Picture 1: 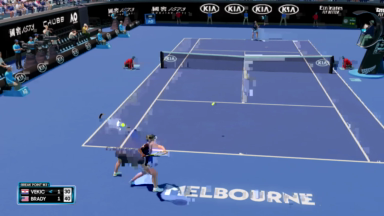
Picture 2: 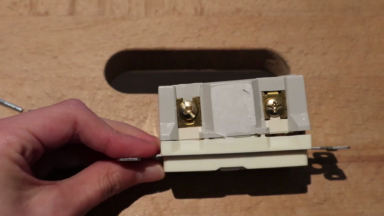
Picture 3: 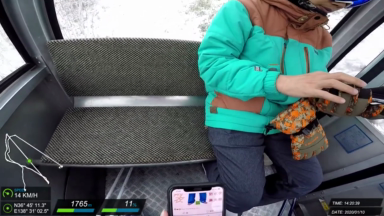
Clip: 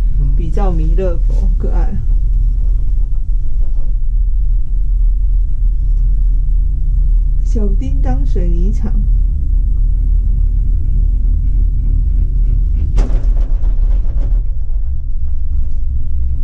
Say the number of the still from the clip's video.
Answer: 3